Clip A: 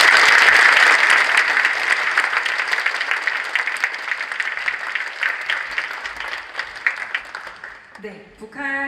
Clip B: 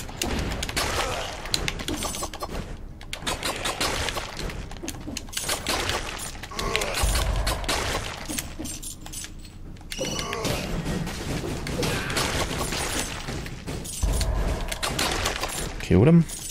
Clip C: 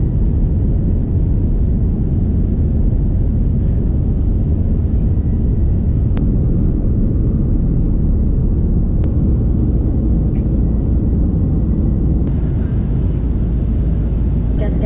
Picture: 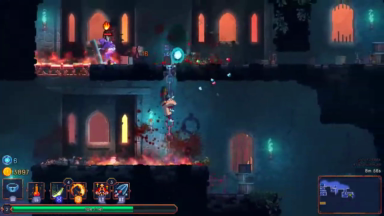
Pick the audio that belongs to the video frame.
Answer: B